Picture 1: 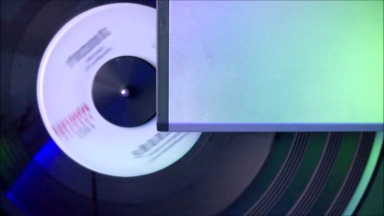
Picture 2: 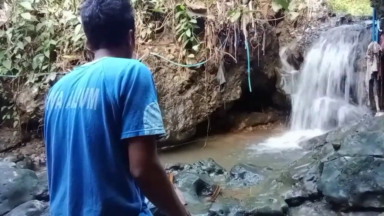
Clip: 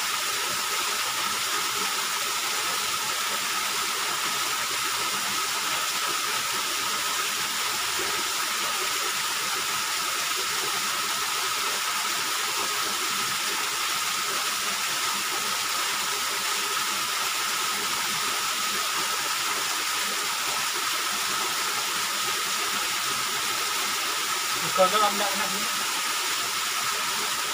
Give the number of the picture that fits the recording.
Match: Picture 2